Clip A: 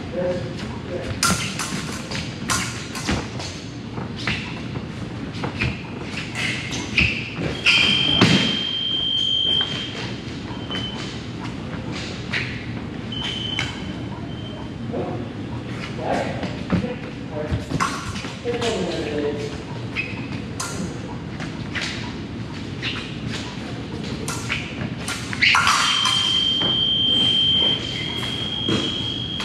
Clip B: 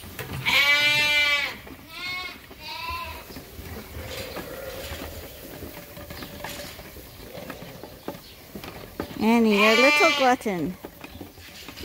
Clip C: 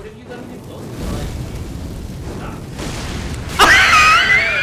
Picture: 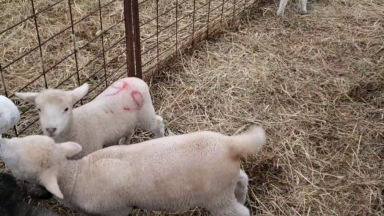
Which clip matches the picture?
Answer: B